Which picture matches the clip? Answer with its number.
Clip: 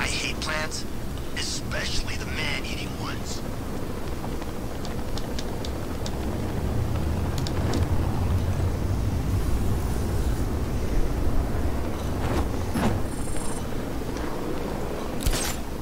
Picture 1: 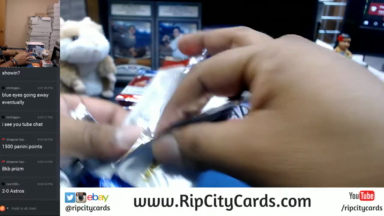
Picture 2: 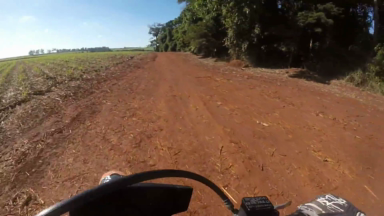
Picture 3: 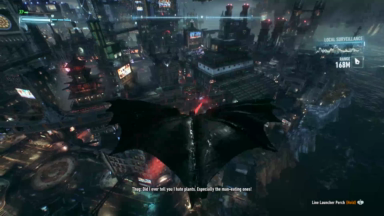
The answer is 3